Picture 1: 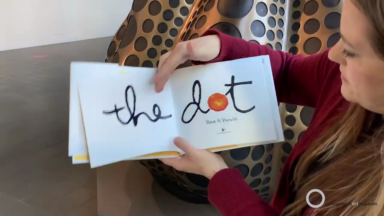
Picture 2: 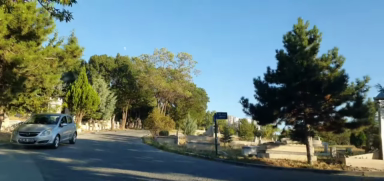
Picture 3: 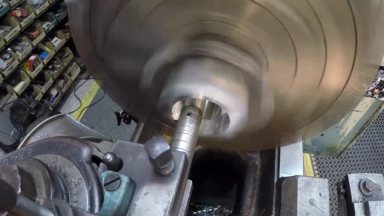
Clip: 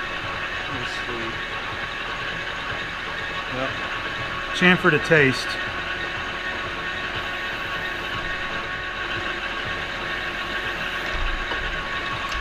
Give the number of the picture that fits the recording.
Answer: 3